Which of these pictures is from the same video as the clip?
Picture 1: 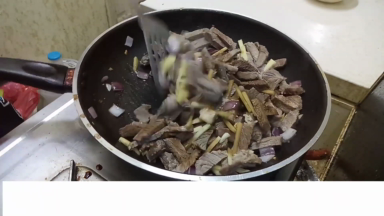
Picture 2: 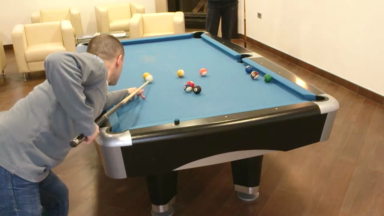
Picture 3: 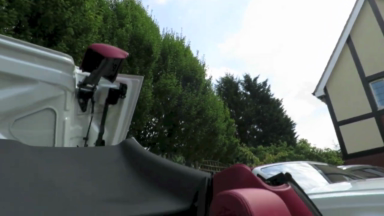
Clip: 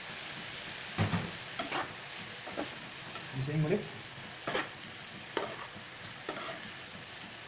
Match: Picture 1